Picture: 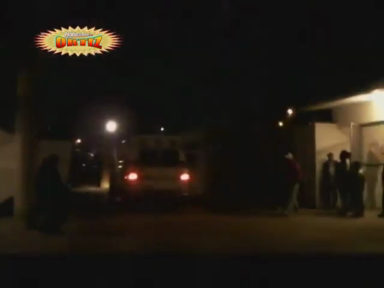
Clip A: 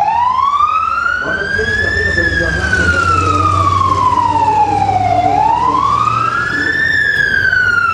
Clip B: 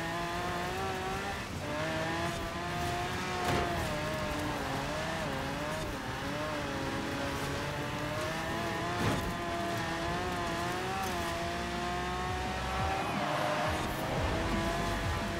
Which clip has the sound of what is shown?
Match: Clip A